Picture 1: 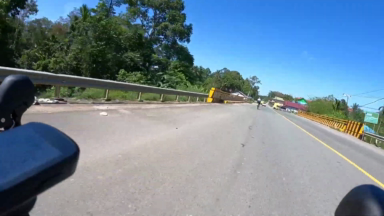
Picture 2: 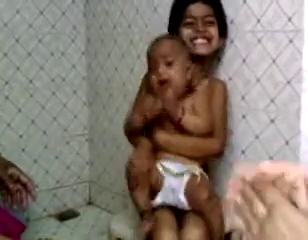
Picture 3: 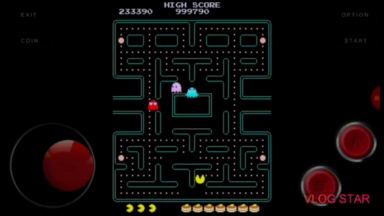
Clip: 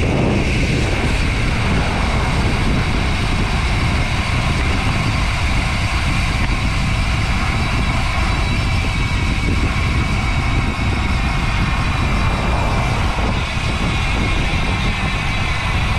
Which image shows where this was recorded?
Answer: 1